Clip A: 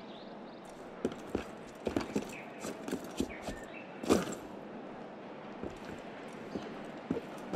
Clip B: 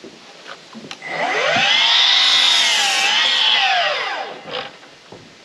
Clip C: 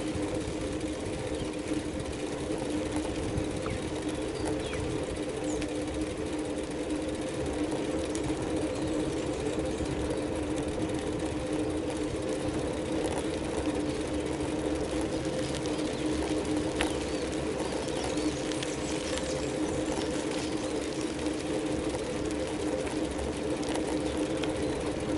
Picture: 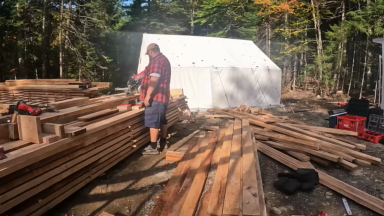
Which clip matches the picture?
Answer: B